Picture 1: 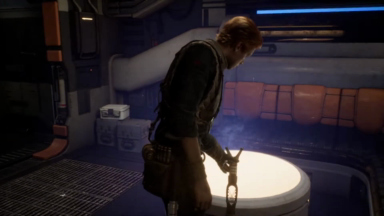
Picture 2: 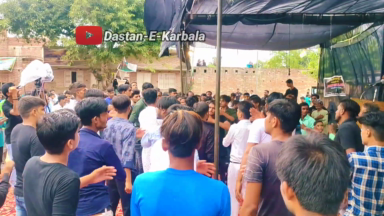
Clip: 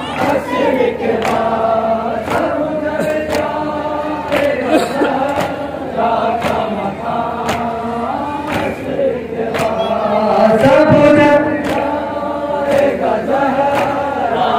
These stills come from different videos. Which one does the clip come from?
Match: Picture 2